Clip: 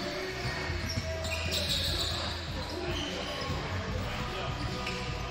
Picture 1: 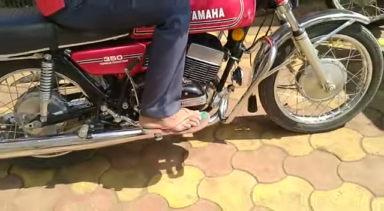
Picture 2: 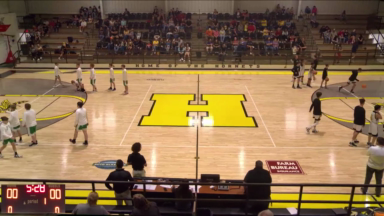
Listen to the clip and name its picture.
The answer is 2